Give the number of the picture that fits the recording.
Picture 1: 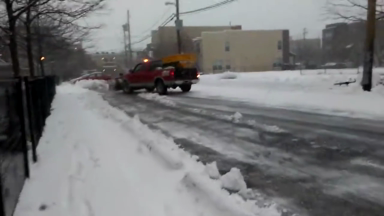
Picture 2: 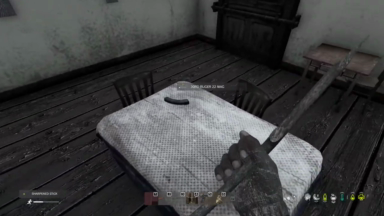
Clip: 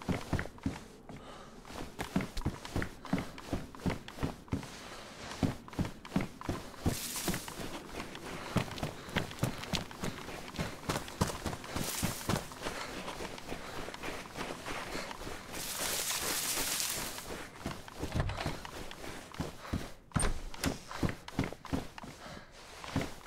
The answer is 2